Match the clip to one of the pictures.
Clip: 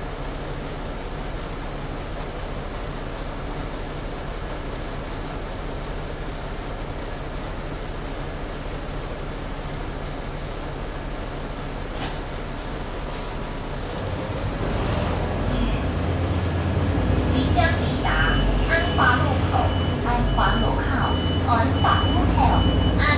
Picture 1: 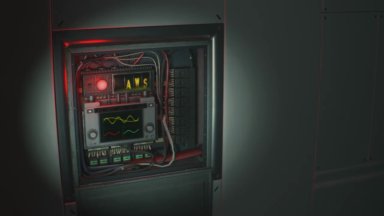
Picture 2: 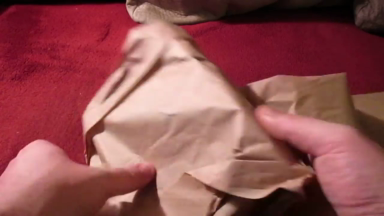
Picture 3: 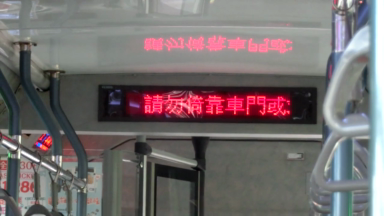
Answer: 3